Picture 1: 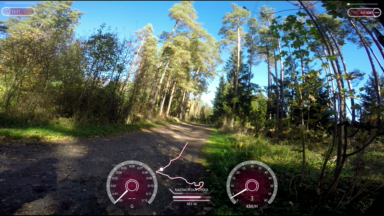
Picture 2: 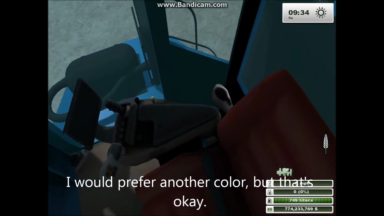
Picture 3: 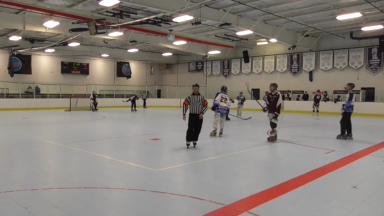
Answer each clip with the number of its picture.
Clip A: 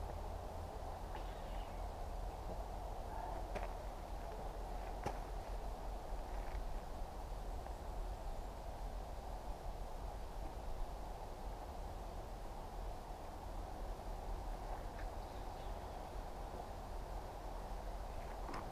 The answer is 1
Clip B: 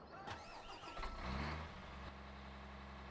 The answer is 2